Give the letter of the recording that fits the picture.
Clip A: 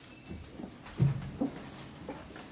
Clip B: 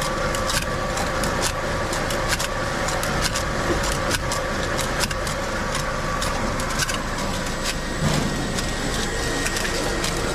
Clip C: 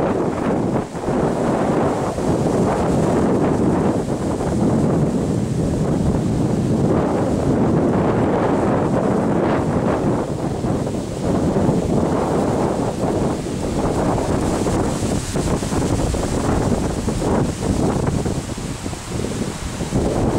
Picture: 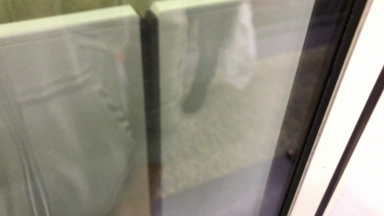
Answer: A